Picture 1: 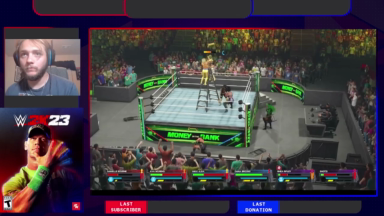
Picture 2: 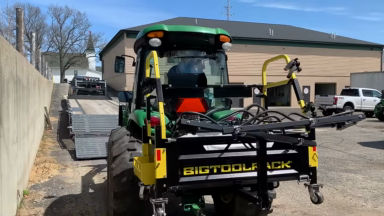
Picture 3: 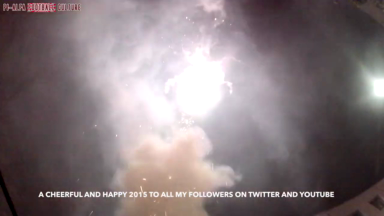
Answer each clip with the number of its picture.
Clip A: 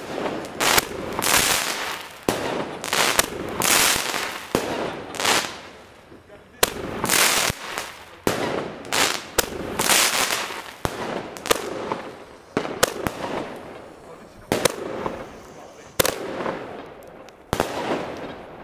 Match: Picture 3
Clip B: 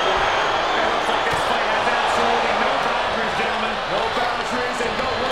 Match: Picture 1